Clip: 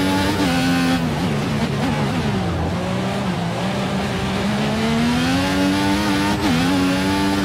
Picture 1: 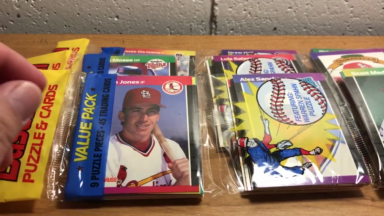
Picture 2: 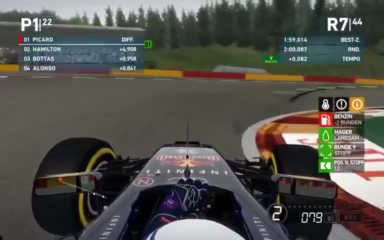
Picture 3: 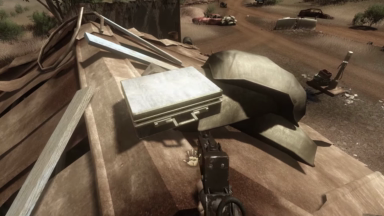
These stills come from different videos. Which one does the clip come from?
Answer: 2